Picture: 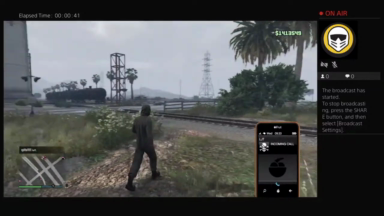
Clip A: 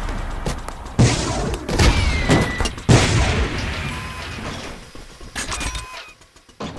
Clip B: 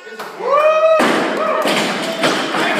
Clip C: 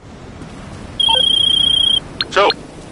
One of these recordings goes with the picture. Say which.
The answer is C